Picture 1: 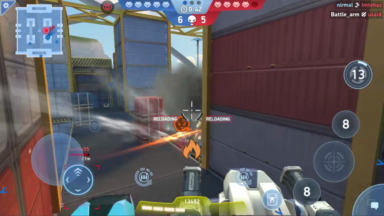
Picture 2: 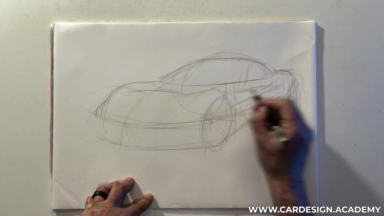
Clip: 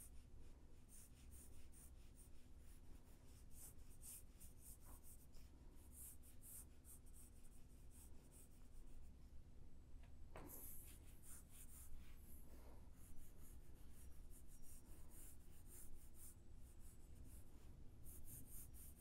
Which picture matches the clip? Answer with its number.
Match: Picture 2